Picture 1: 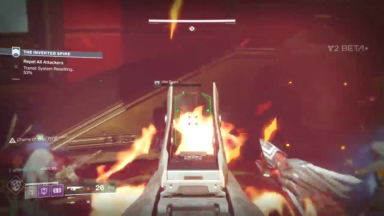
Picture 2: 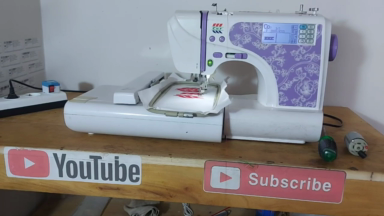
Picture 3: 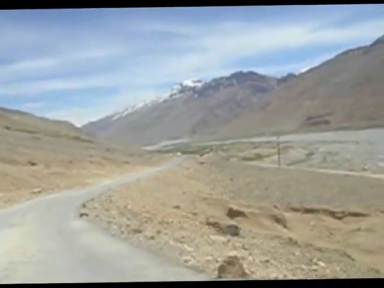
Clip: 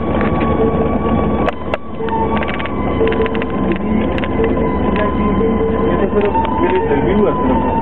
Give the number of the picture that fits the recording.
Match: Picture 3